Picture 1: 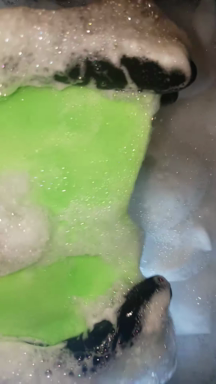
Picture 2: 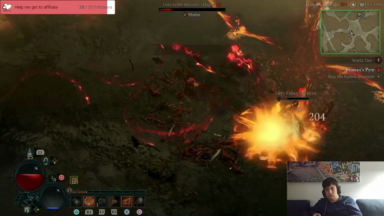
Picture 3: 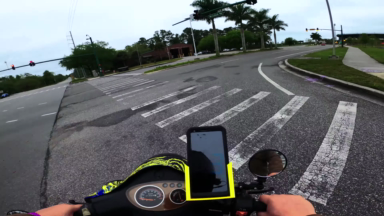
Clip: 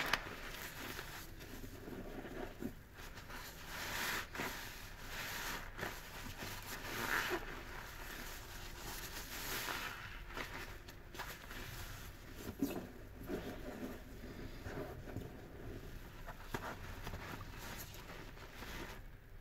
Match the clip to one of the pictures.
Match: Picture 1